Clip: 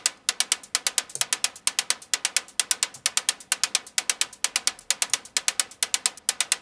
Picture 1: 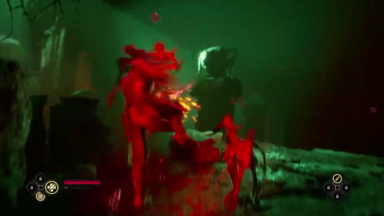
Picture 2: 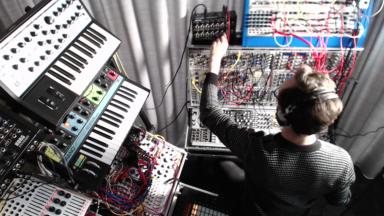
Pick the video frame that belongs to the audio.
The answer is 2